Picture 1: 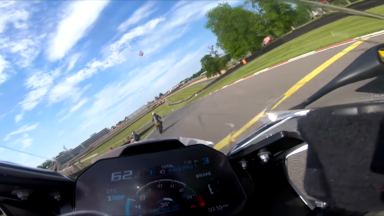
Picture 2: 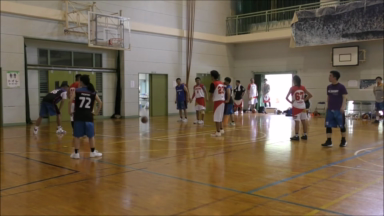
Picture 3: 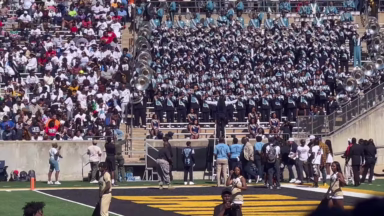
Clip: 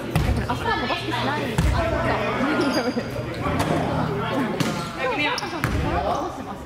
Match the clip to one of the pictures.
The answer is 2